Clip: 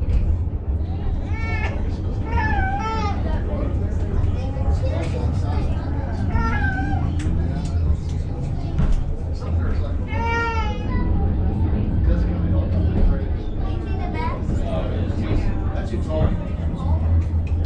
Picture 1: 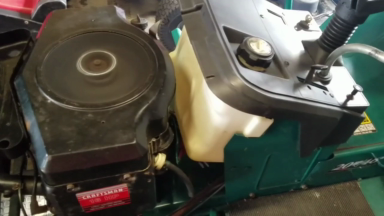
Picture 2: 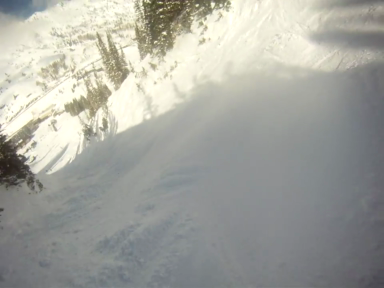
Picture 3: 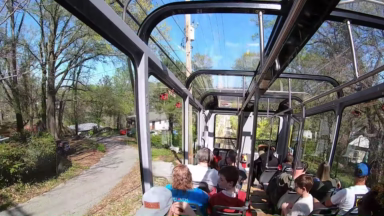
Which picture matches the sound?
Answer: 3